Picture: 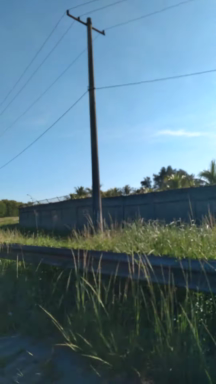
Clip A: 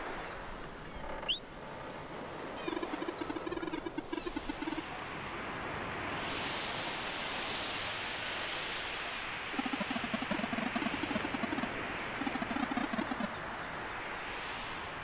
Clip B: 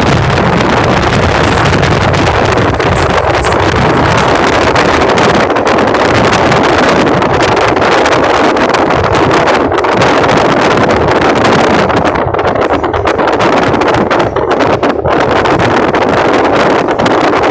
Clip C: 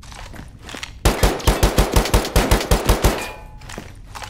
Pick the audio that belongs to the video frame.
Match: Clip B